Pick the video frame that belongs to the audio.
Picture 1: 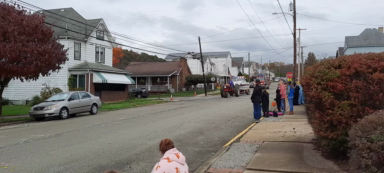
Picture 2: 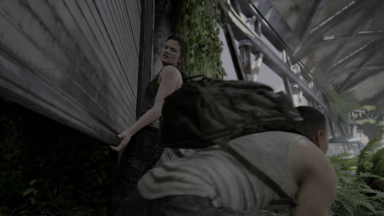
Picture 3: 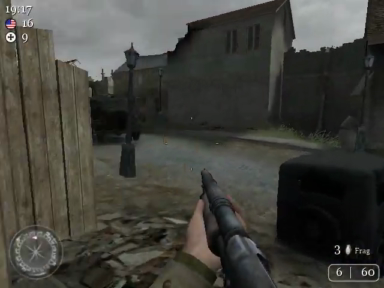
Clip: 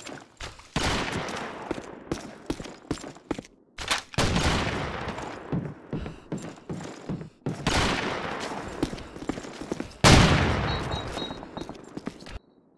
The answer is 3